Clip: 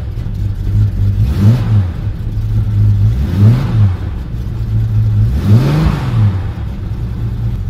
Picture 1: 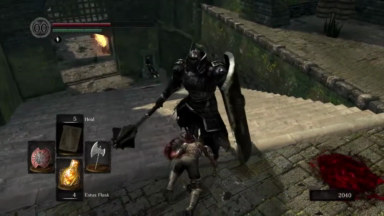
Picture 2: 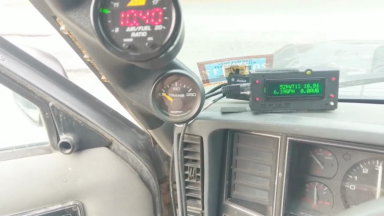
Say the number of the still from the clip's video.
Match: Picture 2